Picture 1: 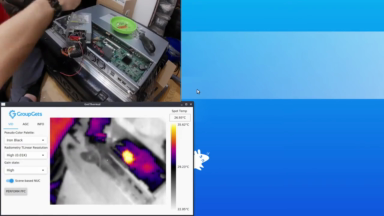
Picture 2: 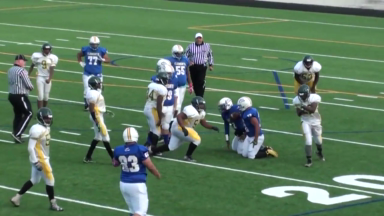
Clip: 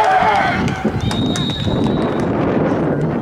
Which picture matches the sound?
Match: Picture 2